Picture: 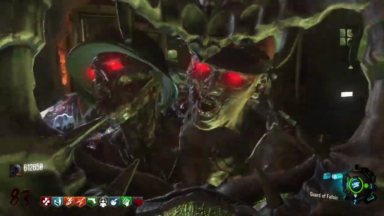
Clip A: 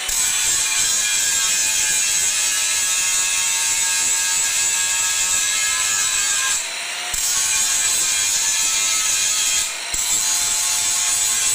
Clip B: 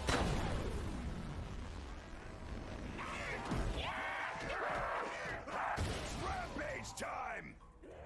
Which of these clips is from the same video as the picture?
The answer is B